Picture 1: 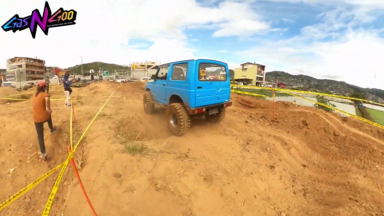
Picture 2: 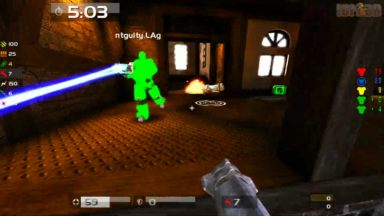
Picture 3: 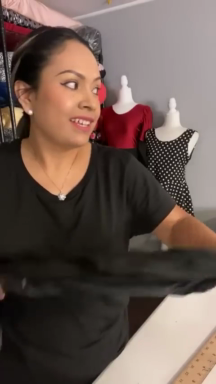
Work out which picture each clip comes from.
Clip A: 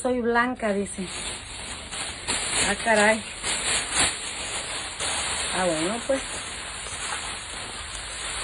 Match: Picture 3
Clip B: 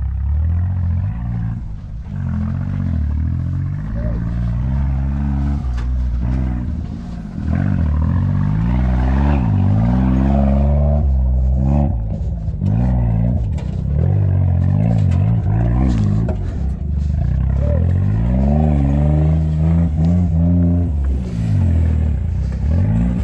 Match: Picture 1